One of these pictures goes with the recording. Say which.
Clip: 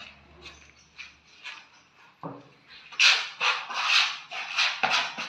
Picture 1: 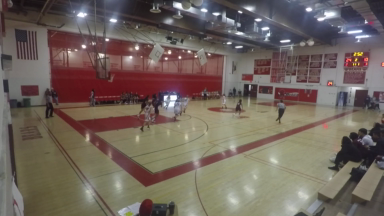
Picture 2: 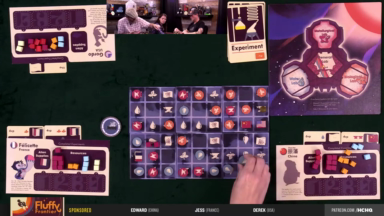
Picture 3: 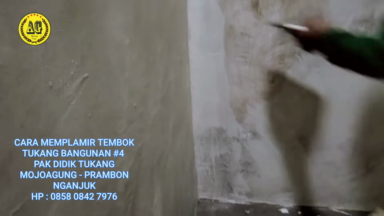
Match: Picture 3